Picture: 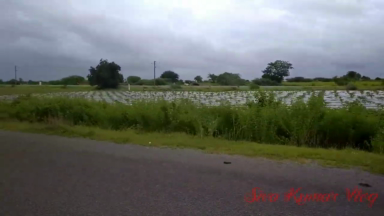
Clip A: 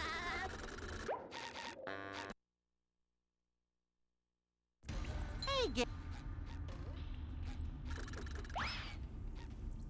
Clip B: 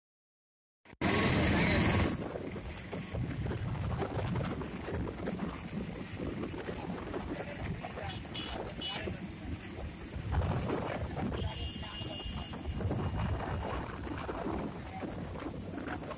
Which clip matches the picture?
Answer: B